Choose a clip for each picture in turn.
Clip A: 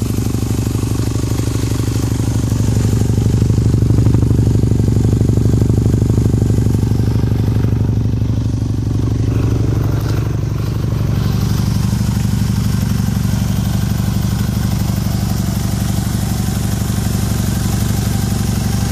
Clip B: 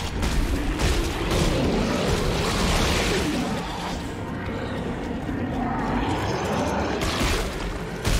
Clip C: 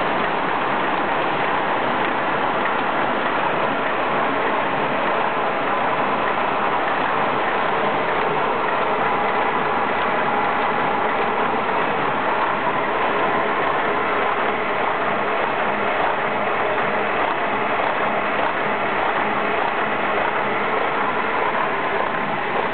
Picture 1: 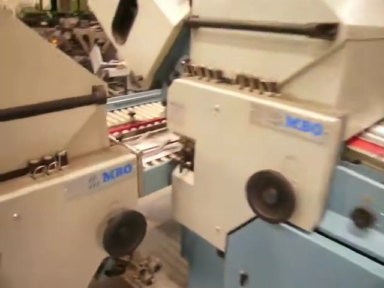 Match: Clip C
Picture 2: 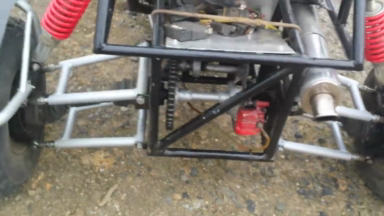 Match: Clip A